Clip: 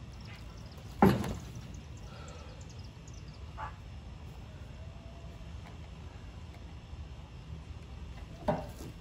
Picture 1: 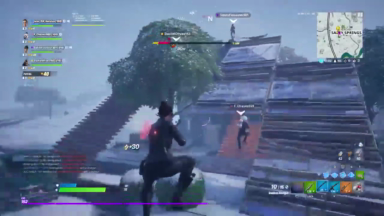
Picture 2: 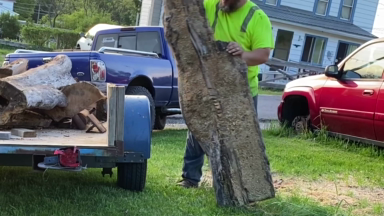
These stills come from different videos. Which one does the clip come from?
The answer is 2